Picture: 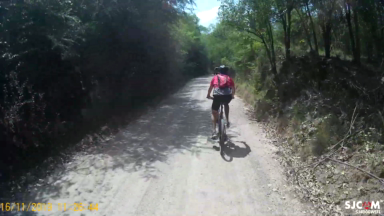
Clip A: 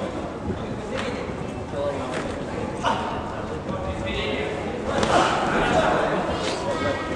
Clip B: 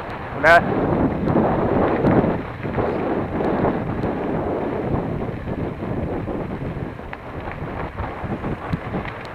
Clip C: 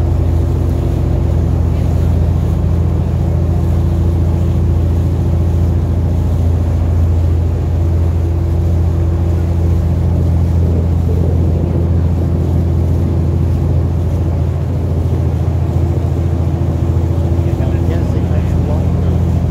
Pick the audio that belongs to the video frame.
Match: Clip B